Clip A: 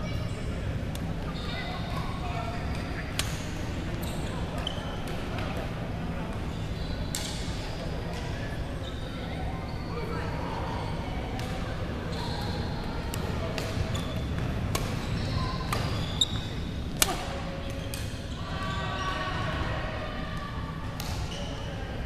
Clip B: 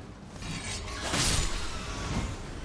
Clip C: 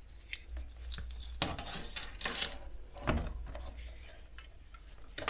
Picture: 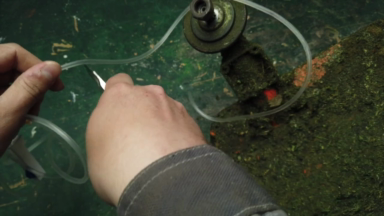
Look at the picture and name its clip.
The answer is C